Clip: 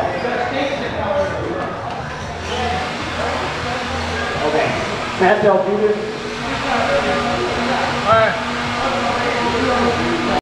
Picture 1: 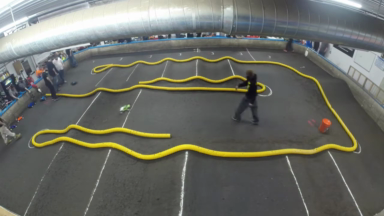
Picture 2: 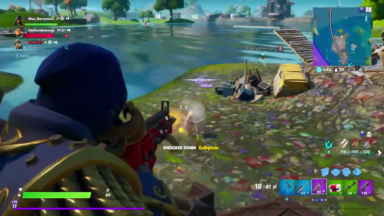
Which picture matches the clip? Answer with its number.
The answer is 1